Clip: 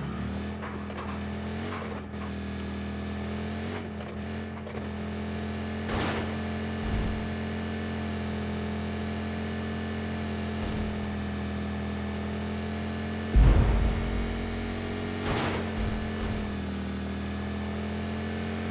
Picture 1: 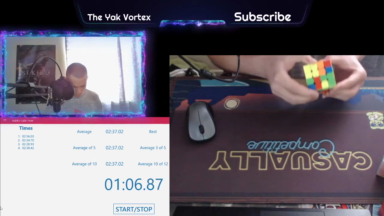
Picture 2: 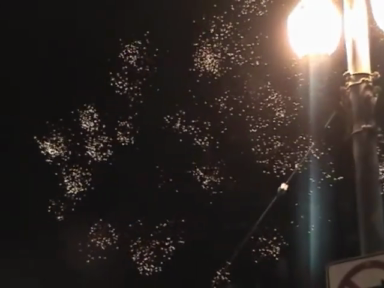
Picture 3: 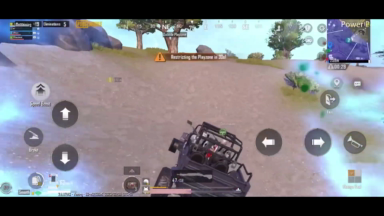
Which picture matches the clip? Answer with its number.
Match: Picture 3